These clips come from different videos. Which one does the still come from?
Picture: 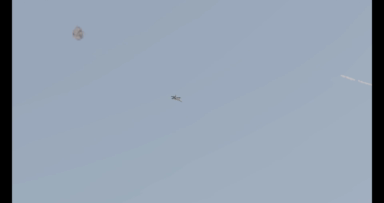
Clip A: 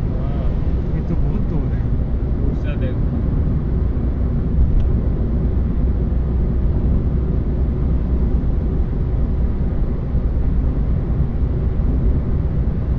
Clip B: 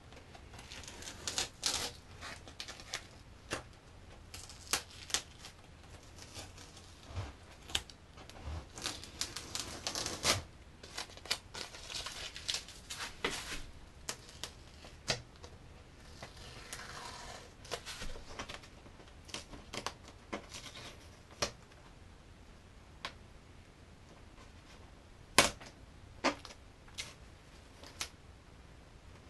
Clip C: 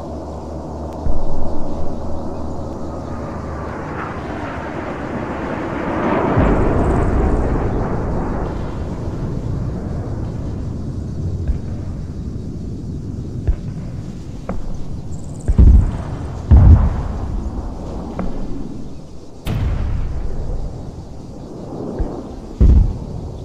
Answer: C